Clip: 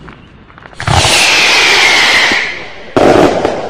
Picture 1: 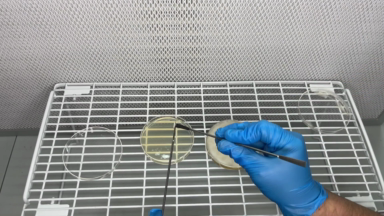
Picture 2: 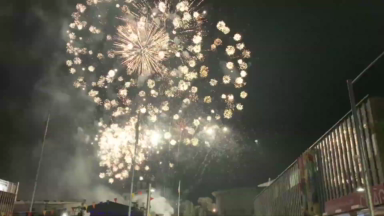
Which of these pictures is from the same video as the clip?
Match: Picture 2